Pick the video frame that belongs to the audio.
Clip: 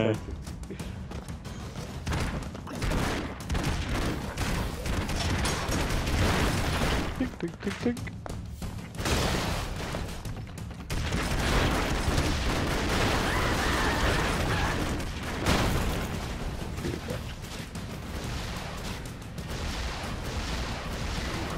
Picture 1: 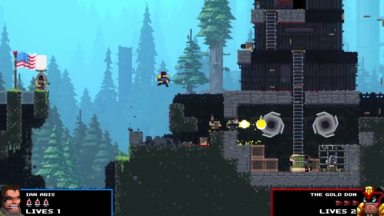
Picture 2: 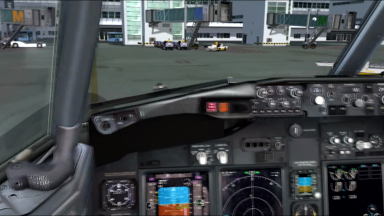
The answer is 1